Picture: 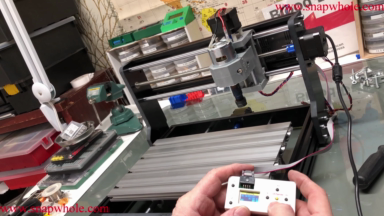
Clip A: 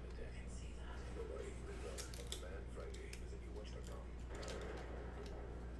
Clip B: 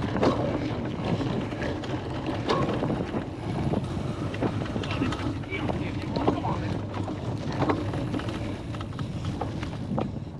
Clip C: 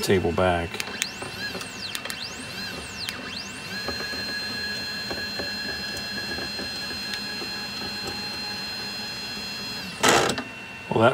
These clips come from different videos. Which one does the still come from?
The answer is C